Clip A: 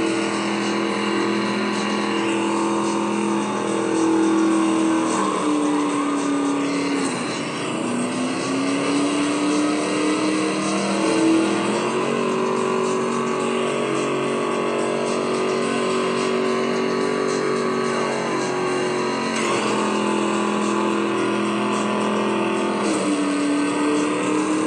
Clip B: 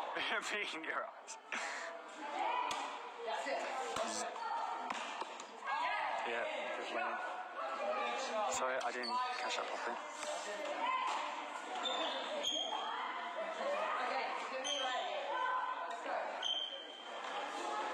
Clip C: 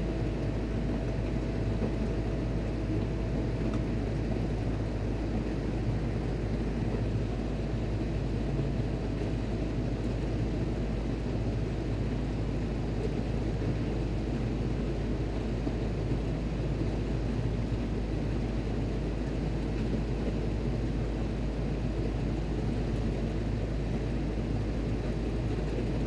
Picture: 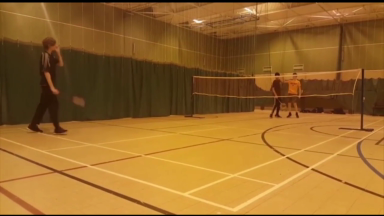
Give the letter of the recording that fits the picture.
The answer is B